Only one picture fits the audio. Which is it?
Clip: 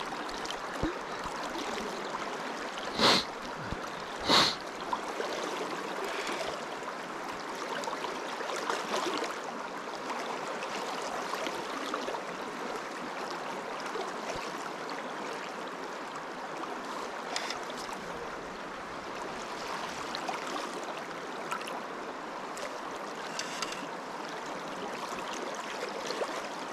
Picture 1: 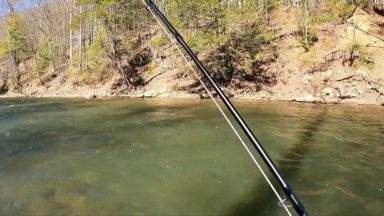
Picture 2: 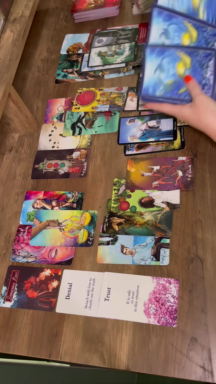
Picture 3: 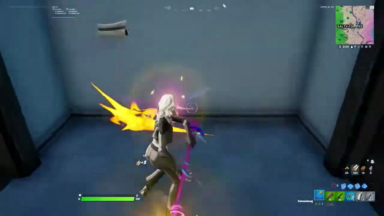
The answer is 1